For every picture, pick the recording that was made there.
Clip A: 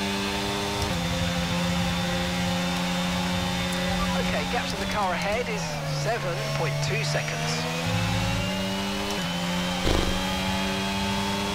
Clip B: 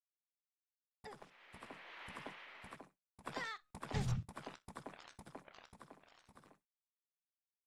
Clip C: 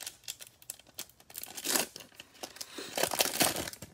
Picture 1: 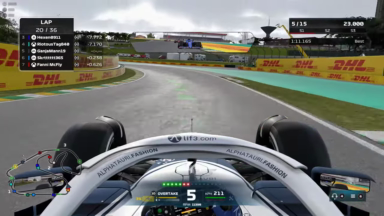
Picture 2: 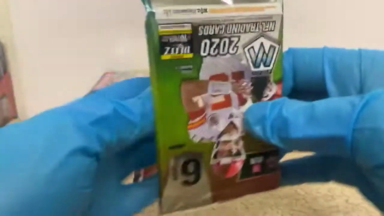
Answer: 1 A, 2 C